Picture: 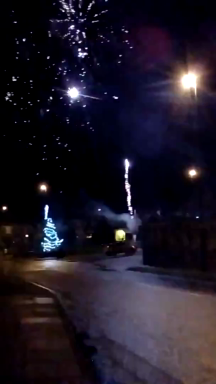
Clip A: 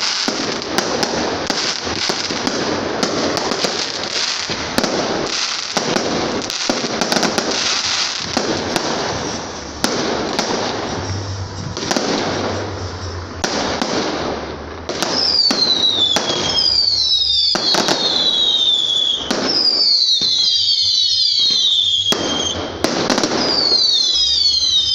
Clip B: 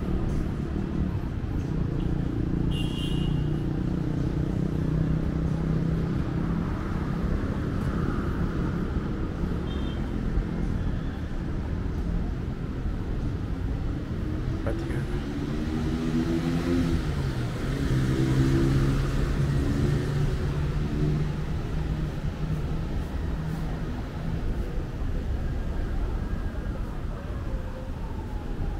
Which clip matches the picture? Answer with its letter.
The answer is A